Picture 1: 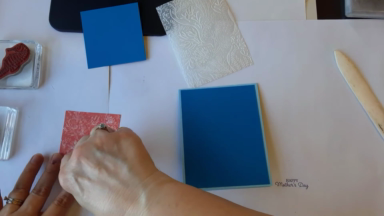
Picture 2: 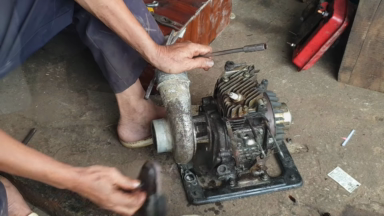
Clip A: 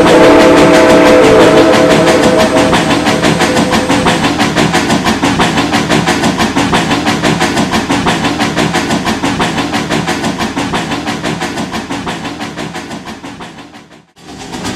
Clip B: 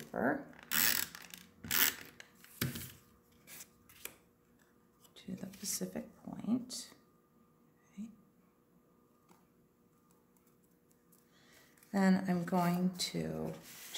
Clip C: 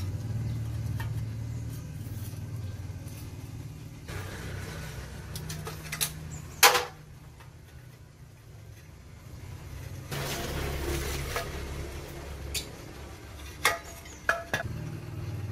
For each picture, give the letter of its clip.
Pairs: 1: B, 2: C